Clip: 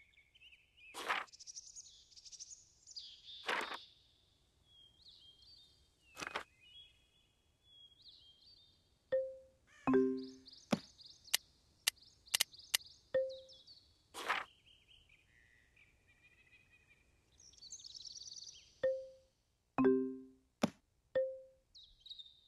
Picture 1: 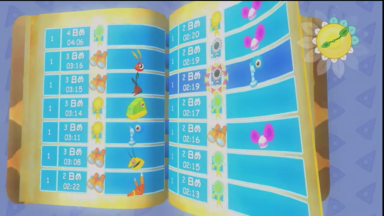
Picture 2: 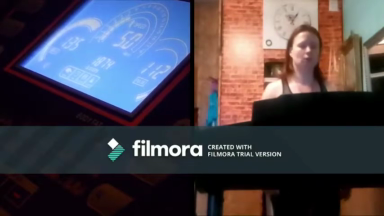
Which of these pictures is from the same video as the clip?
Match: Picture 1